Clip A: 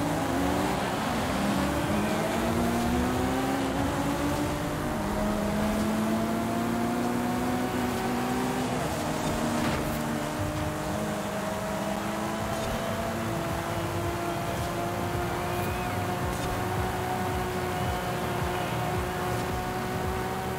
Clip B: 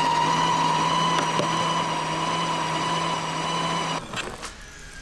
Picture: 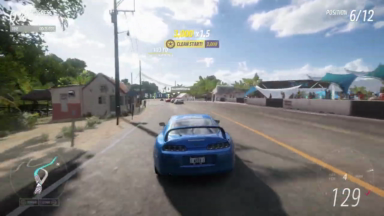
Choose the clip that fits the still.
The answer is A